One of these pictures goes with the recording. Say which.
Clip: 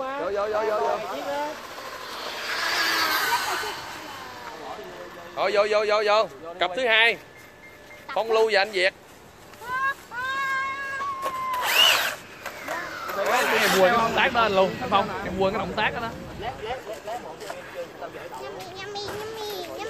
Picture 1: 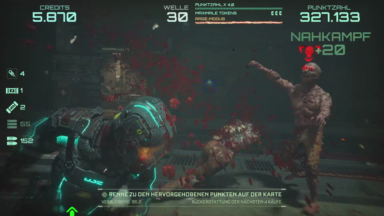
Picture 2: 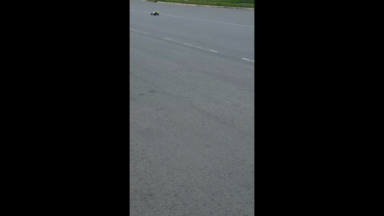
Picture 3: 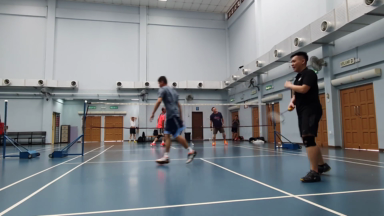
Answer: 2